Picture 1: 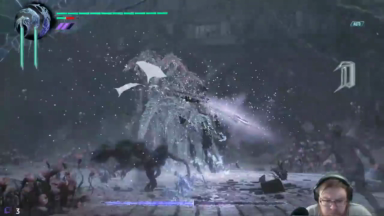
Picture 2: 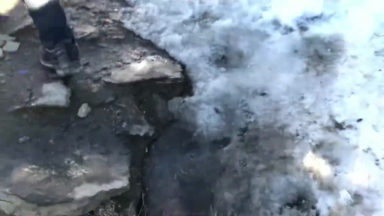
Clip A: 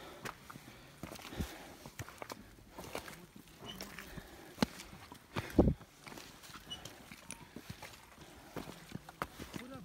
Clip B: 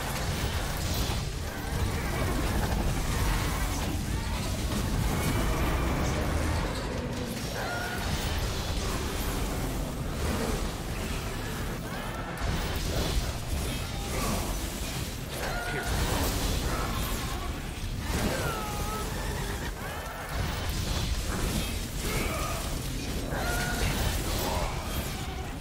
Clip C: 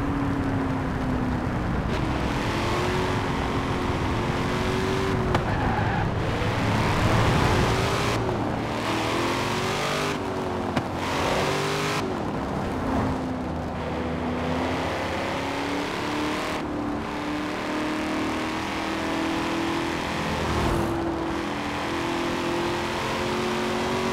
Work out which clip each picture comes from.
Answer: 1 B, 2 A